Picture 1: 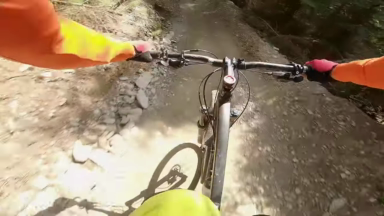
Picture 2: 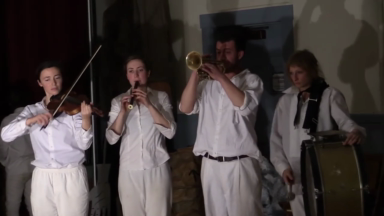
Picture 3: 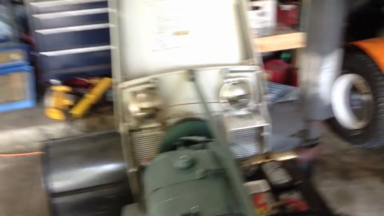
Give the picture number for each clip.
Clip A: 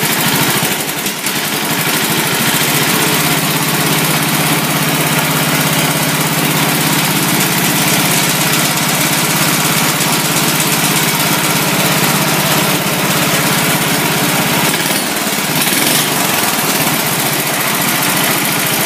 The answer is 3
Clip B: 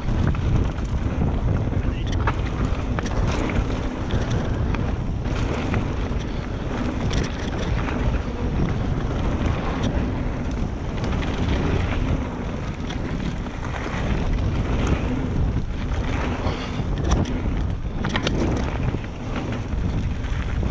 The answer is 1